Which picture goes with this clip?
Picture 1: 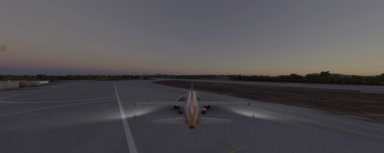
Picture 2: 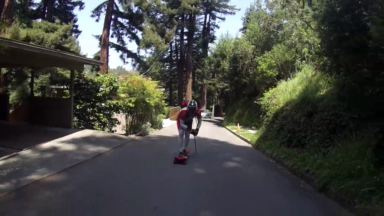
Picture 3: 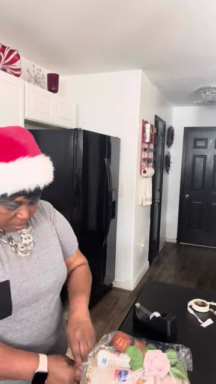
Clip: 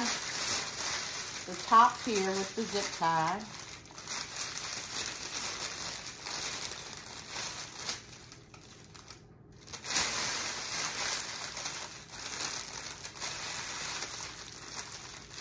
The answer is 3